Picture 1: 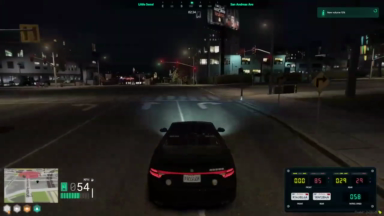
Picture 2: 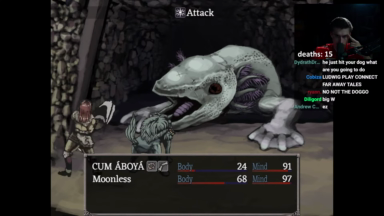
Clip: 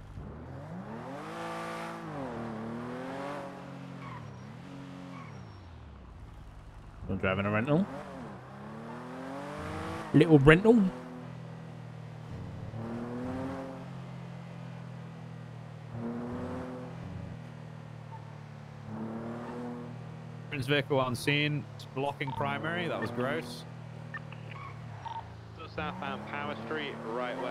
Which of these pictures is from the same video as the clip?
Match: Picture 1